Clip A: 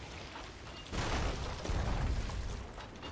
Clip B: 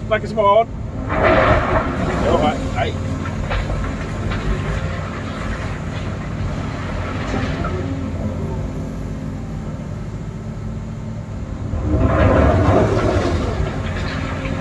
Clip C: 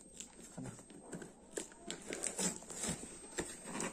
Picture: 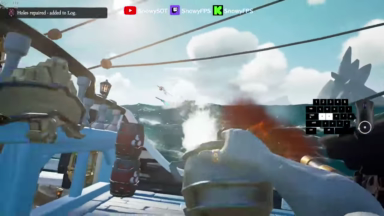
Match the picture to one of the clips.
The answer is A